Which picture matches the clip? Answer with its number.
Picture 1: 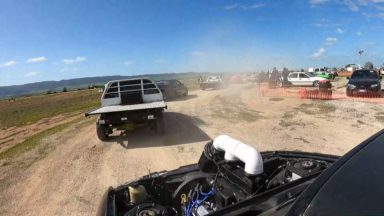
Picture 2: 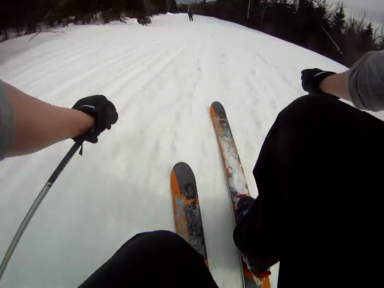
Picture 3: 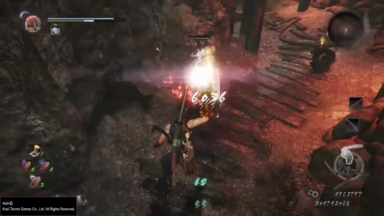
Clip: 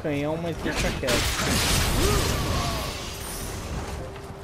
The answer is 3